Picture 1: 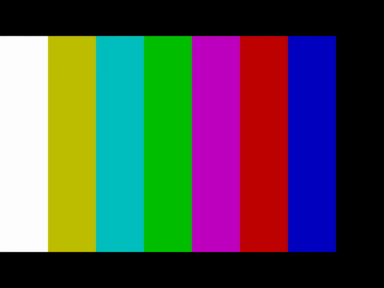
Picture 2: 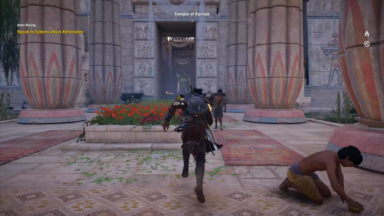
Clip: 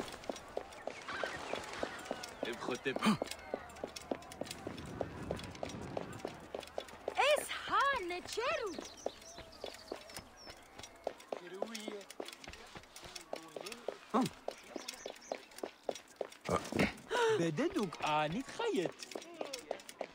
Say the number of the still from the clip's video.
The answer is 2